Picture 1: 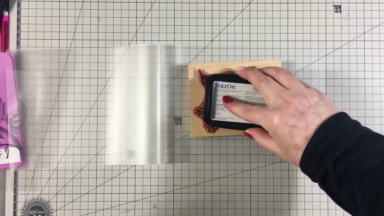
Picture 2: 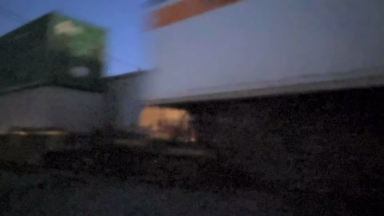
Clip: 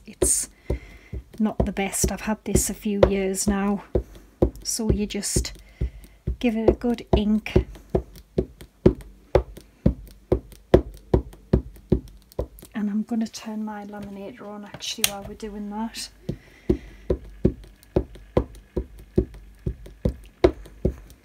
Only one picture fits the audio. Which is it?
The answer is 1